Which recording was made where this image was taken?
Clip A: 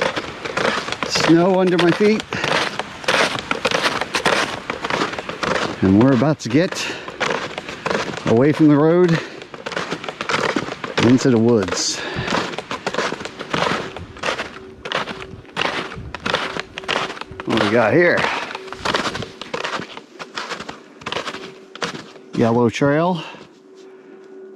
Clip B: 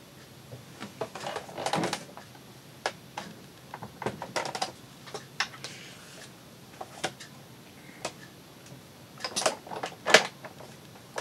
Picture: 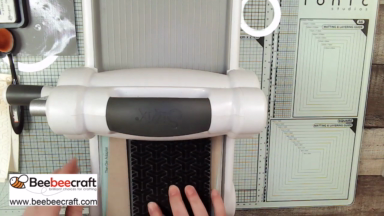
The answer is B